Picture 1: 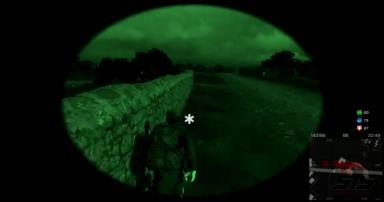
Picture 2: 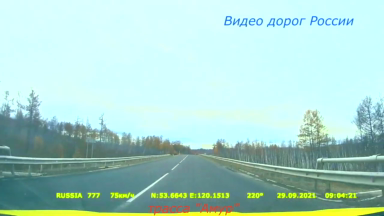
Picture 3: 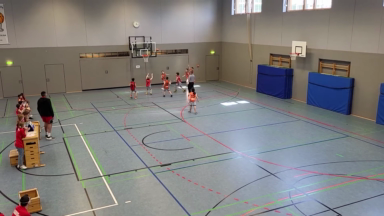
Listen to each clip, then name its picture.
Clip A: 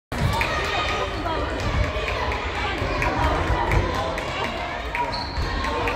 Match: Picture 3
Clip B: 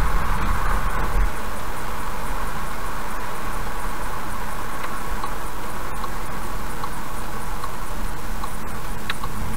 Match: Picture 2